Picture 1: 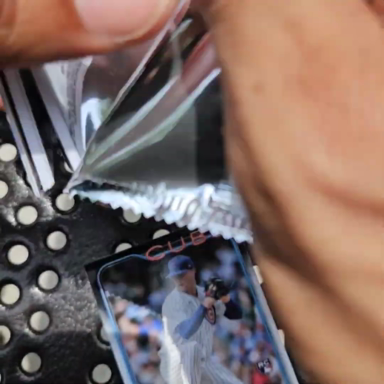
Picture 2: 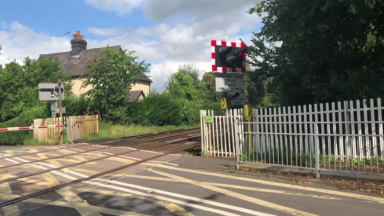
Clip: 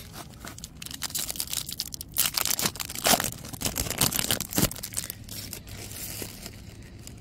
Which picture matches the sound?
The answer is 1